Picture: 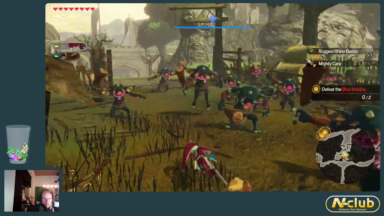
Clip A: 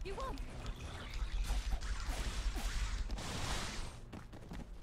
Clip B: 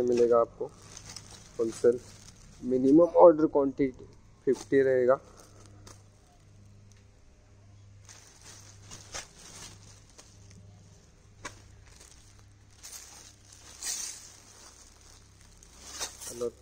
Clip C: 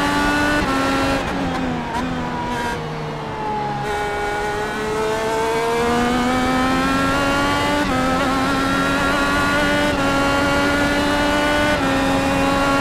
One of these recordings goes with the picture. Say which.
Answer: A